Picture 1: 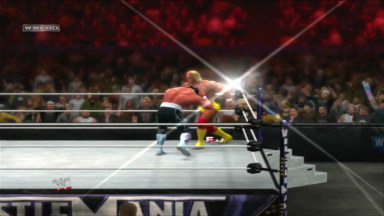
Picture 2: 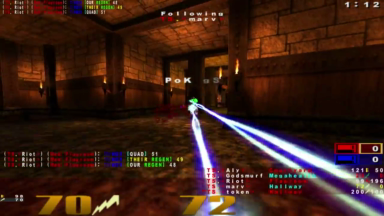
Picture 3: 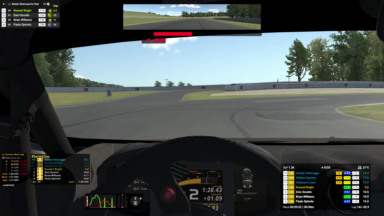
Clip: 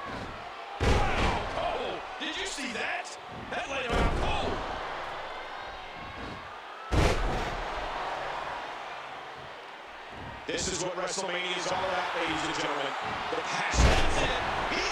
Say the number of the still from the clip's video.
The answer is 1